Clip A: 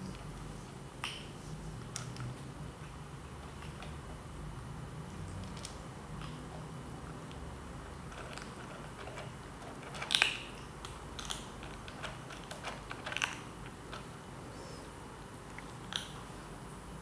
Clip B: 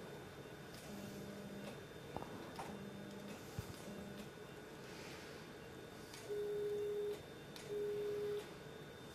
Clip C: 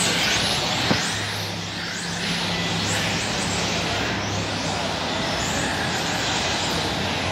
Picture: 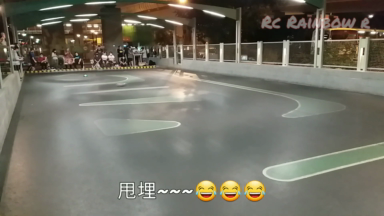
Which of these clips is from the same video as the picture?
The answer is C